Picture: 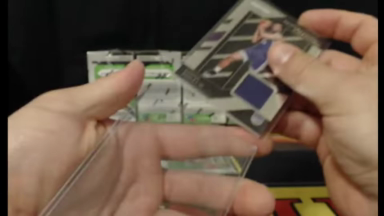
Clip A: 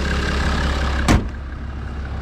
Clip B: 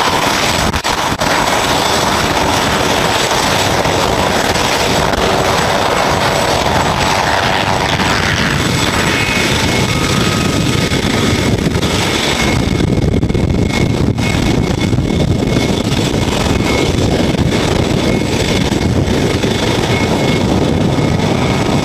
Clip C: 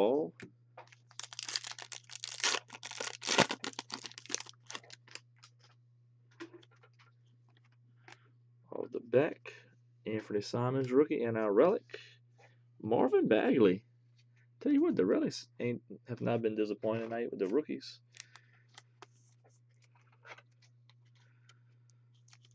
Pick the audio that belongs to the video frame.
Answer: C